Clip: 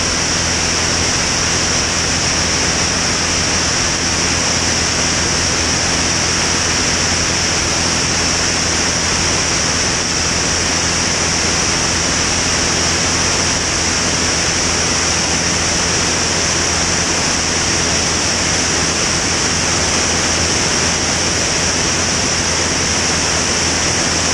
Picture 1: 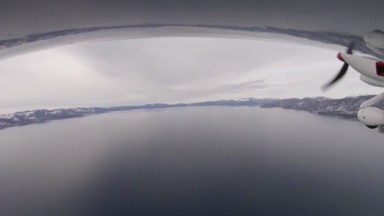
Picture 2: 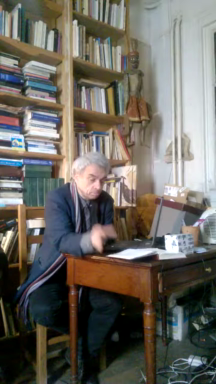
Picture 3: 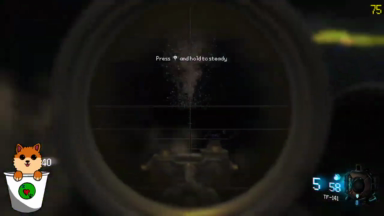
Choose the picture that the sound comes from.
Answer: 1